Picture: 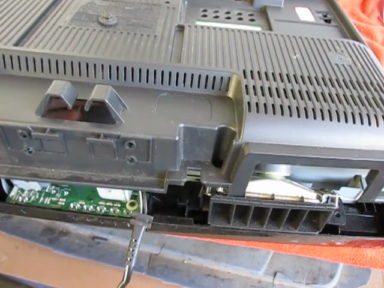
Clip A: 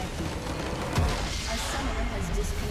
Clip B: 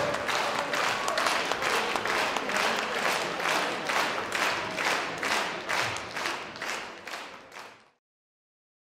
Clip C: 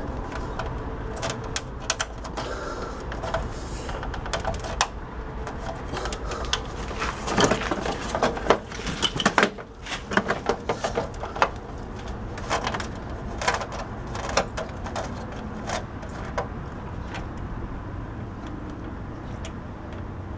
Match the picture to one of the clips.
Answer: C